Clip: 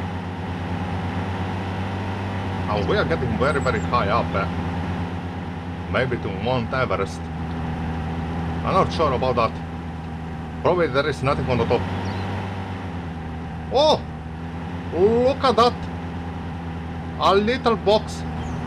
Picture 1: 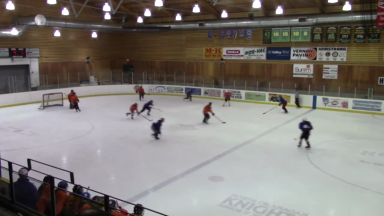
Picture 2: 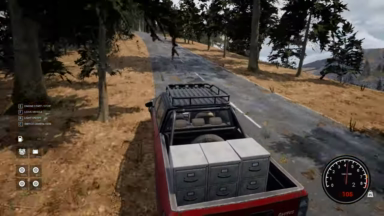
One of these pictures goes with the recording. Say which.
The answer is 2